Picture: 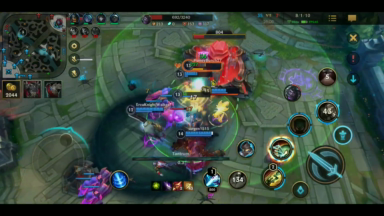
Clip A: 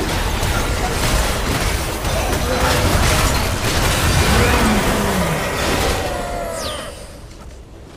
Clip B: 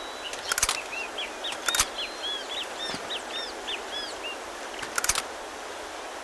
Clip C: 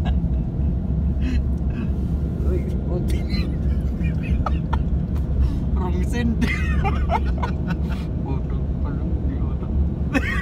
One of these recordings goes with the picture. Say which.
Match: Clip A